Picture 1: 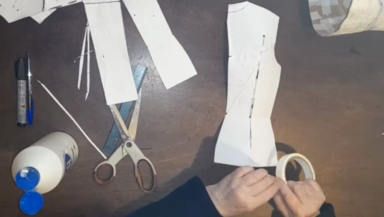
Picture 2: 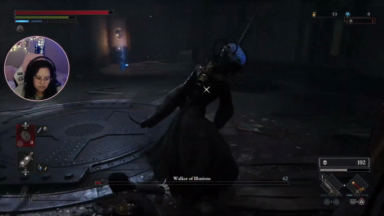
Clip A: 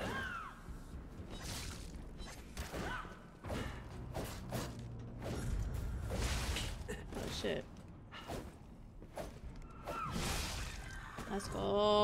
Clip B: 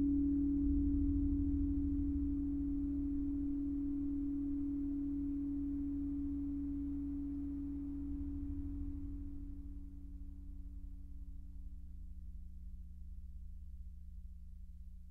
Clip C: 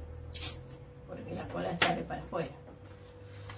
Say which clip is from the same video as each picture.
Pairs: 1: C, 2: A